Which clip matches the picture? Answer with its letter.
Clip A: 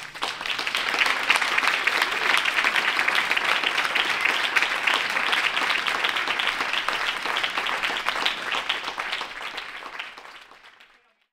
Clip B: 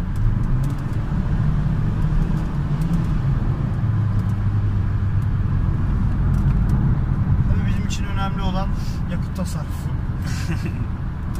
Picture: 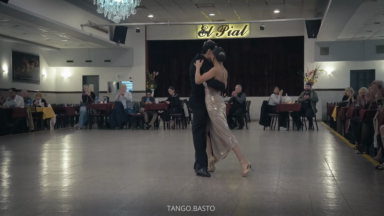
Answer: A